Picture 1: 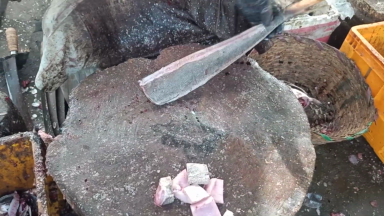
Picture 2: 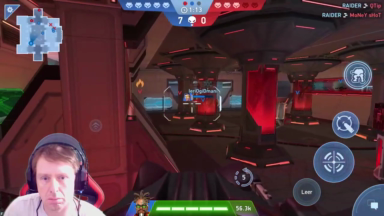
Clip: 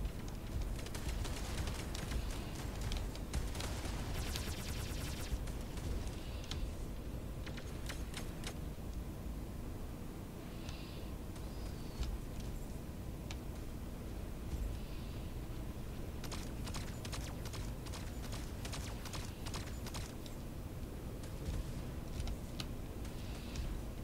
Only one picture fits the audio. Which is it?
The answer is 2